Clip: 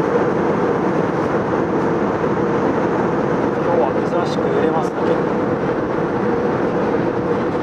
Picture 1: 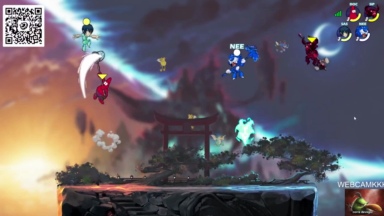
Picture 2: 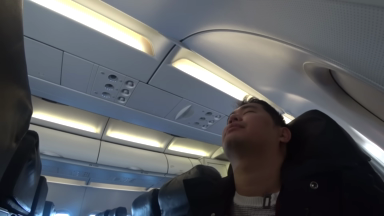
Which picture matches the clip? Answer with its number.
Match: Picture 2